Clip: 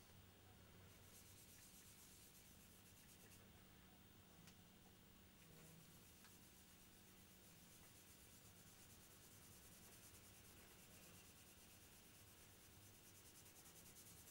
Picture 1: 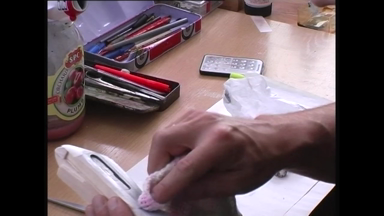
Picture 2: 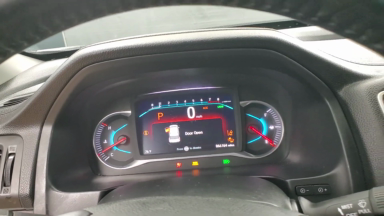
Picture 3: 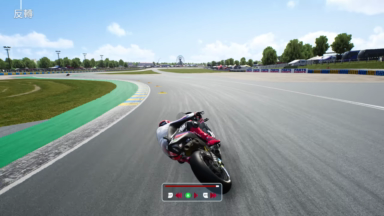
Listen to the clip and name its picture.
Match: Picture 1